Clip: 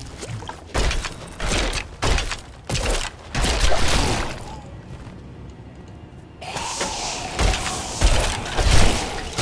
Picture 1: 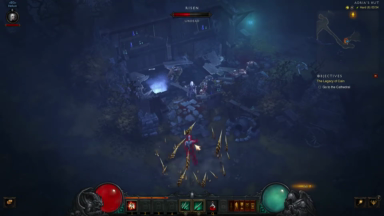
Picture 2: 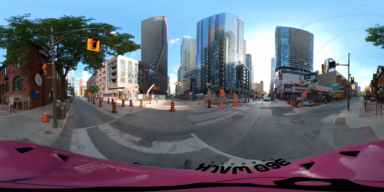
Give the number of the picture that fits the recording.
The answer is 1